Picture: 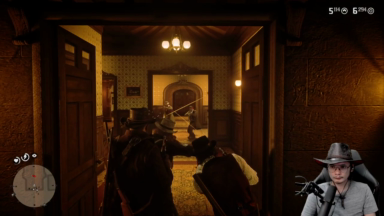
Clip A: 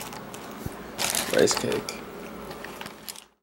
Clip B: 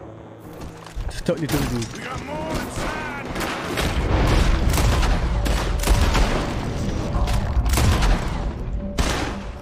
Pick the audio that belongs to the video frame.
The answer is B